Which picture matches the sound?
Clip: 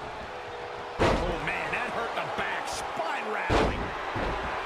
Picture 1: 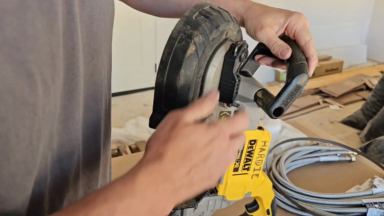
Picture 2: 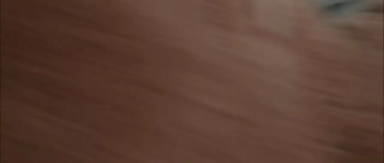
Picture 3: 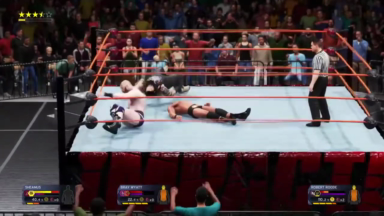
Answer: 3